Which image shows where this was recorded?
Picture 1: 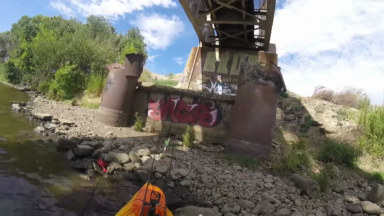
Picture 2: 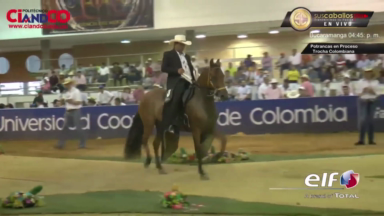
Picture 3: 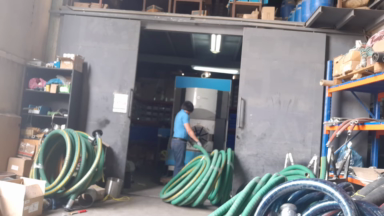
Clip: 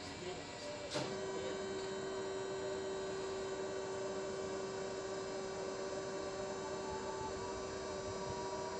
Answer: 3